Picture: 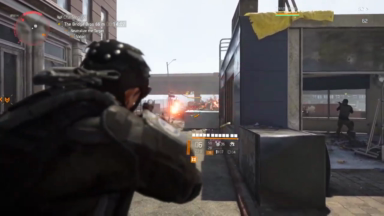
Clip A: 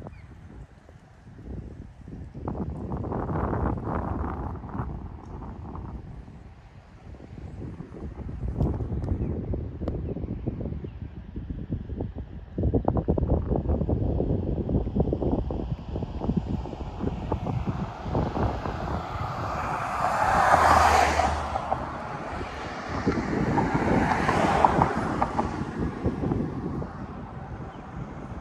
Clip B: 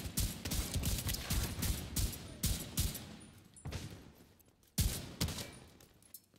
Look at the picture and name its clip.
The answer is B